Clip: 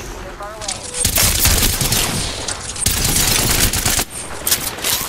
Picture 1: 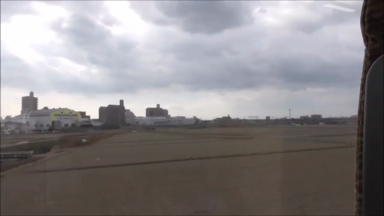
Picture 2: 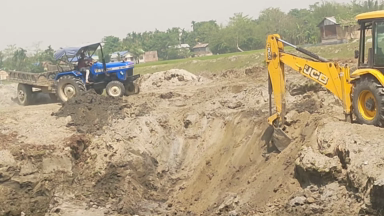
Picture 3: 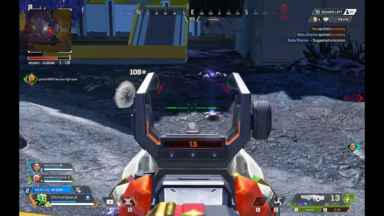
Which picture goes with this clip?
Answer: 3